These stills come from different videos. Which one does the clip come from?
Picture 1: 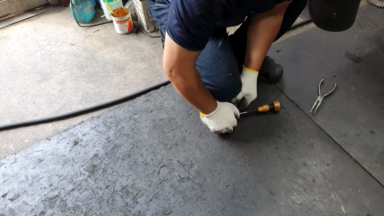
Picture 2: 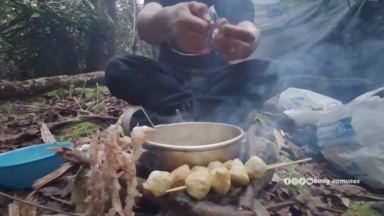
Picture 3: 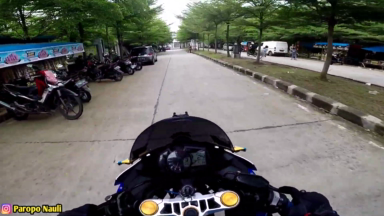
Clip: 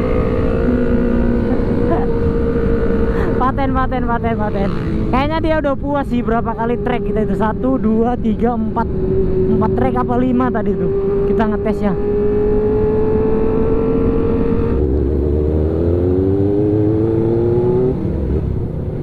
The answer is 3